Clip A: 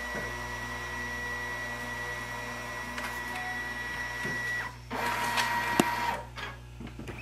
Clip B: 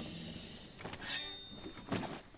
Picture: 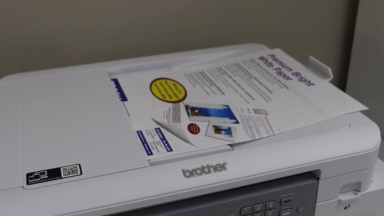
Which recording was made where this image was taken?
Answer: A